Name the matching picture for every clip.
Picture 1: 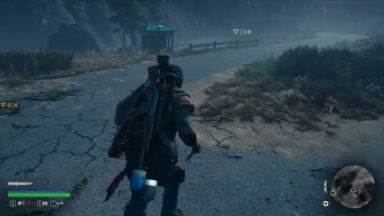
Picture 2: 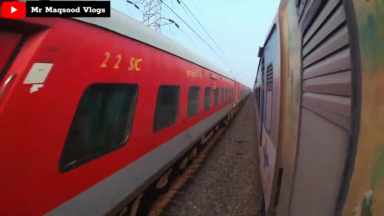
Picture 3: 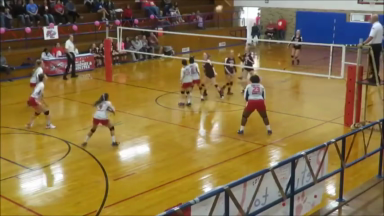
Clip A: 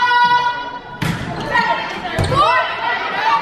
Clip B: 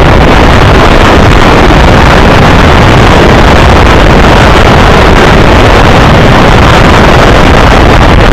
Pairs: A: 3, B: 2